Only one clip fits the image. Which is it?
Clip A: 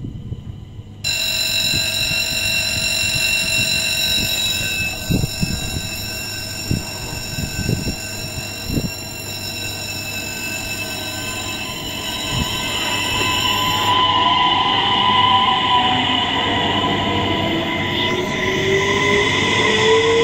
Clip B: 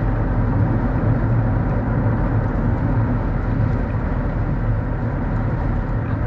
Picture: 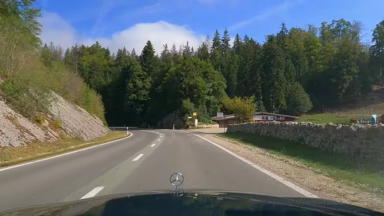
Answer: B